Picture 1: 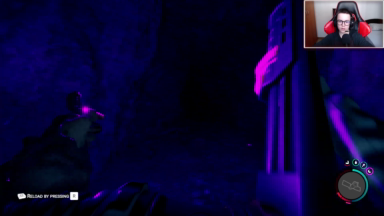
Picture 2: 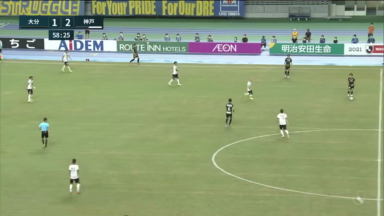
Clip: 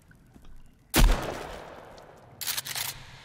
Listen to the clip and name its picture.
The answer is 1